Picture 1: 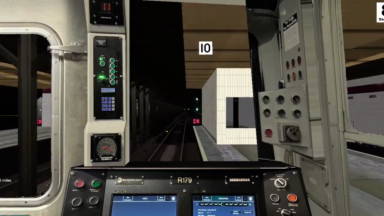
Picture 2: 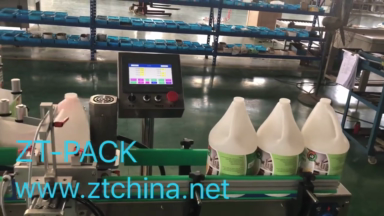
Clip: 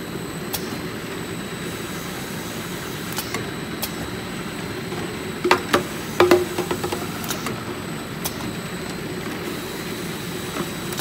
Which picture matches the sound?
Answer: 2